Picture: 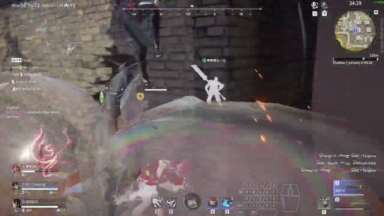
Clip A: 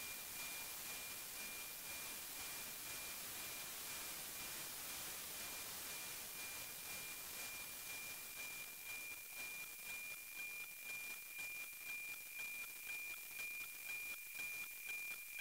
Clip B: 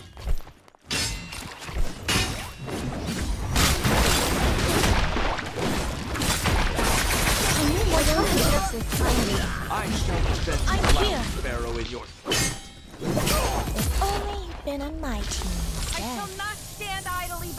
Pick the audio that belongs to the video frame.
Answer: B